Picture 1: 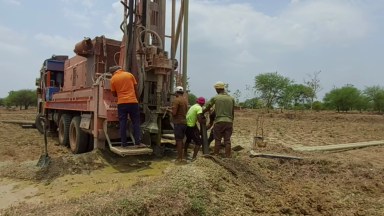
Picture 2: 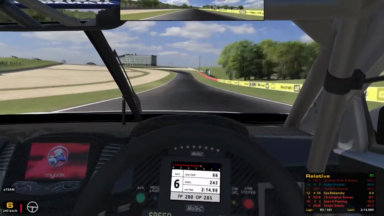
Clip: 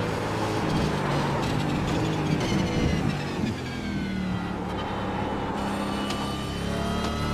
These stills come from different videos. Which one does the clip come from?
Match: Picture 2